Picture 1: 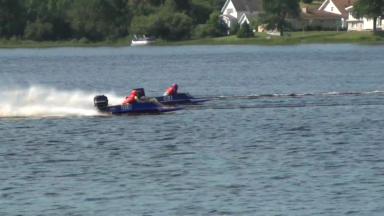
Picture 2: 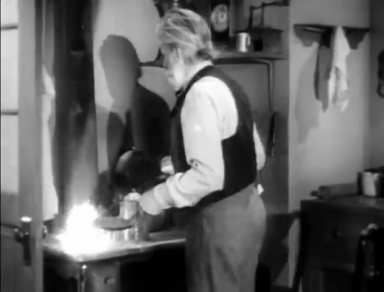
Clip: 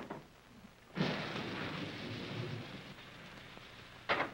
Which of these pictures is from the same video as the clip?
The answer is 2